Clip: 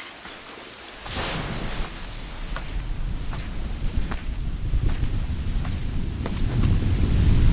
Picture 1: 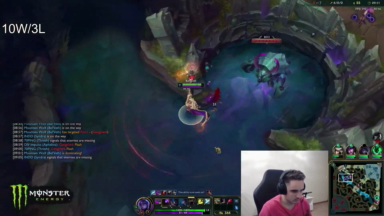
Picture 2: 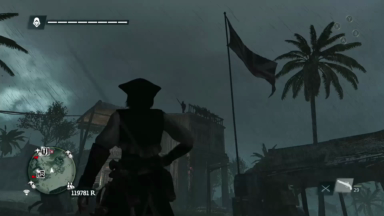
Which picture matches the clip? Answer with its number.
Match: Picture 2